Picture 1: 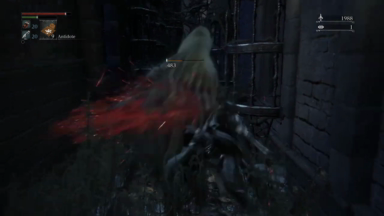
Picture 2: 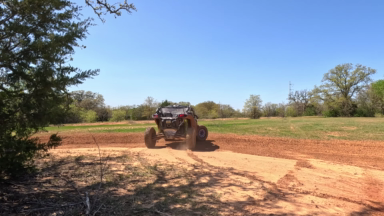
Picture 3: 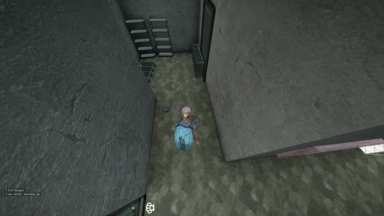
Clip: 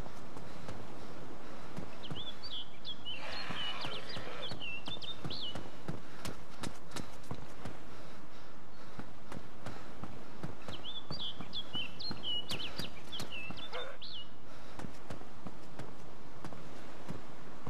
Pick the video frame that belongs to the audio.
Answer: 3